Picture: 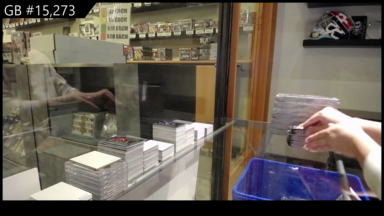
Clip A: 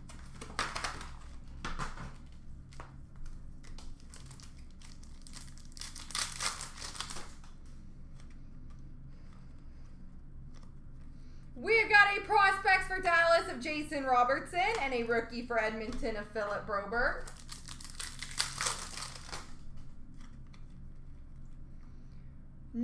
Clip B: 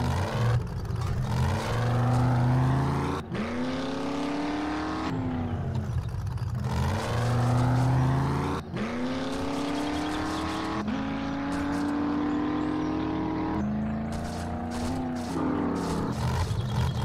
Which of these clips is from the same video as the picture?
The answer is A